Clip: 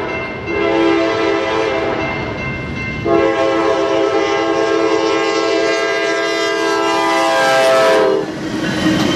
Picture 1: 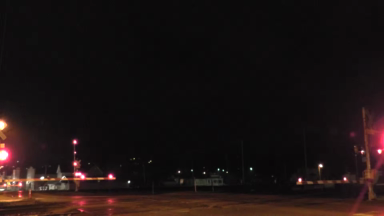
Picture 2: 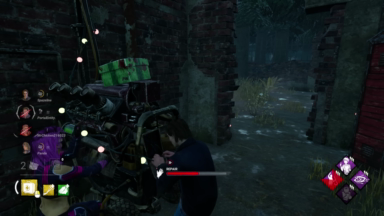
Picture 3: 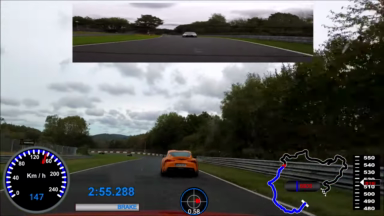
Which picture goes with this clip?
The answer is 1